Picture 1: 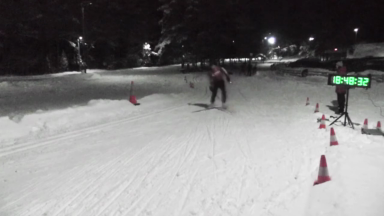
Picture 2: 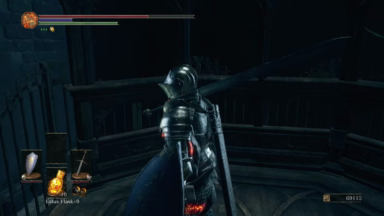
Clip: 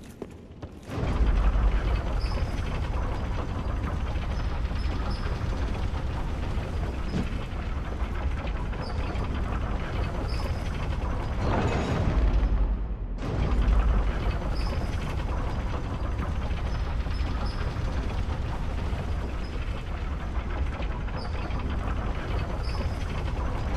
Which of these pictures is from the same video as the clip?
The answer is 2